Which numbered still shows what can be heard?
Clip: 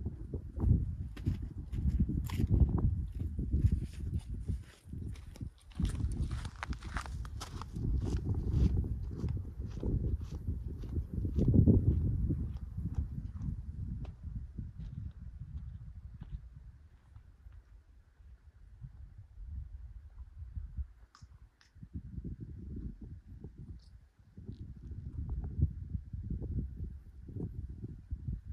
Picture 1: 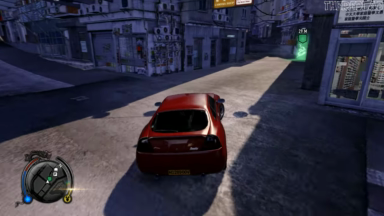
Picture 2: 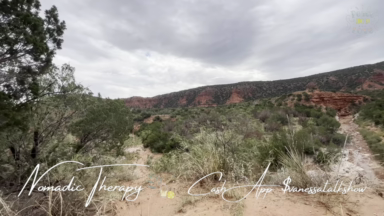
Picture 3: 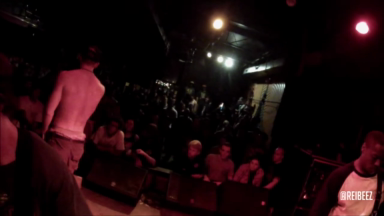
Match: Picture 2